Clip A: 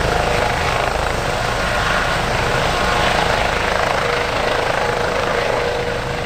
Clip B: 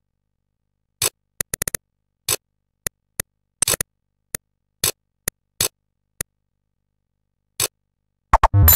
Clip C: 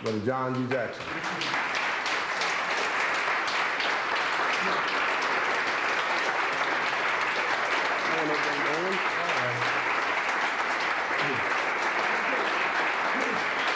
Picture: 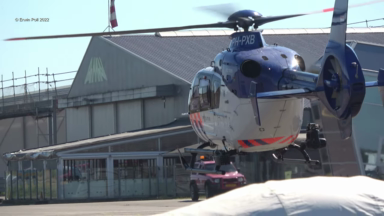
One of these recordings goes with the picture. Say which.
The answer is A